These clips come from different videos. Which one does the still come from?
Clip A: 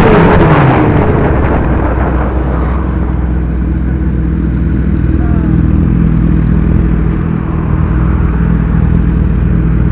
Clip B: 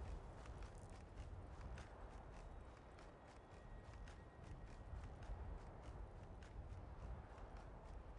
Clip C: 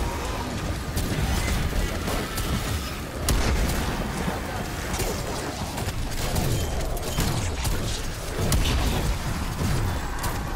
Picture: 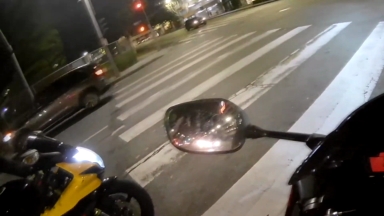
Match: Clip A